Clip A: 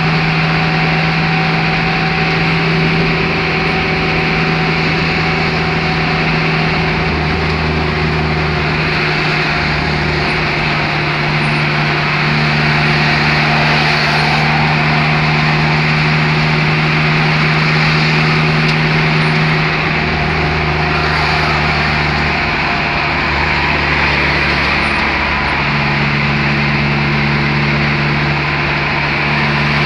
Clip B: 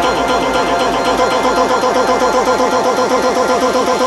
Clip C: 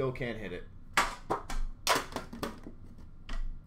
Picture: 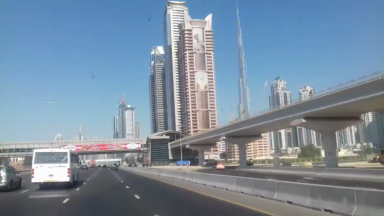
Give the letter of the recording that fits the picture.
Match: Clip A